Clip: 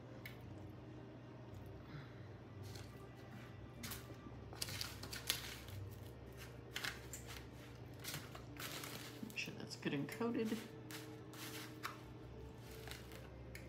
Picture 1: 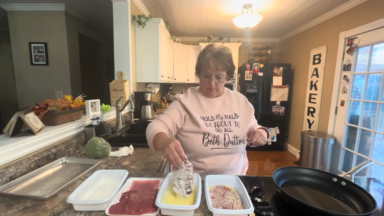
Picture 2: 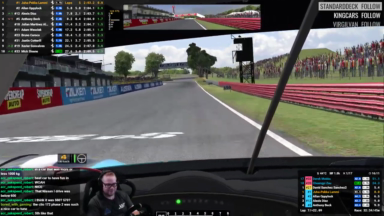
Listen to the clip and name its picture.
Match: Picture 1